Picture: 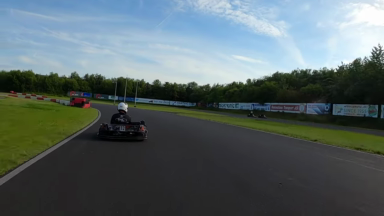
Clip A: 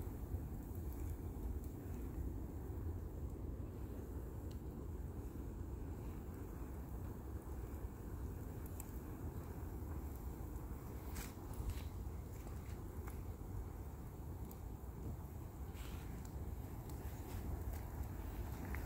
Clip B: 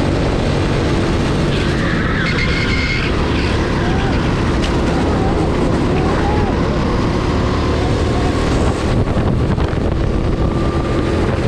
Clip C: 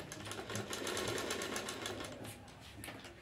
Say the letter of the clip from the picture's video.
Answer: B